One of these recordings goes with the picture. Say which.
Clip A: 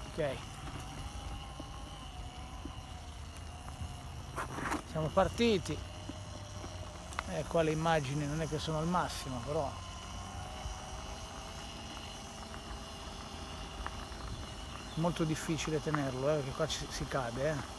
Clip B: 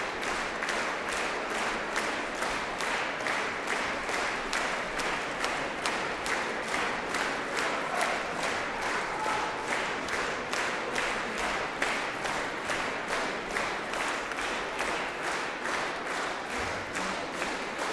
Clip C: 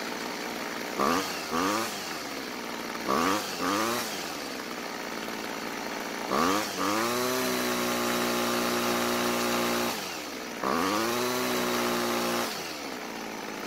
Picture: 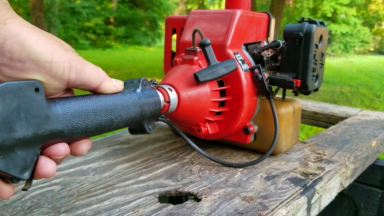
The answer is C